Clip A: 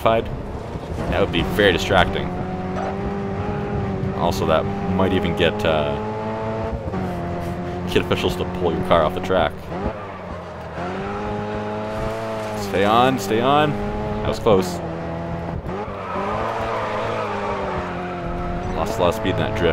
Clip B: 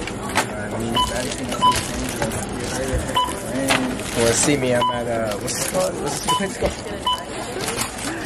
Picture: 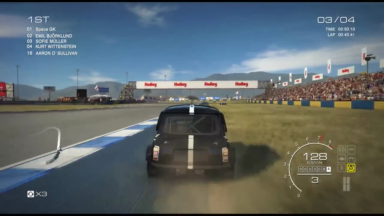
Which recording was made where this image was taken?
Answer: A